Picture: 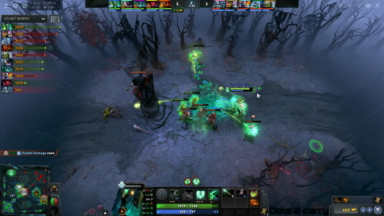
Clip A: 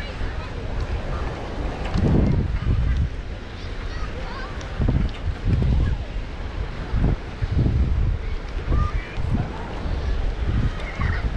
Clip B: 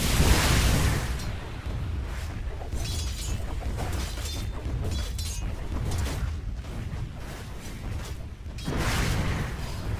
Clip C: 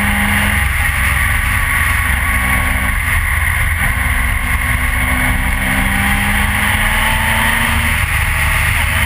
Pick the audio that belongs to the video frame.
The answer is B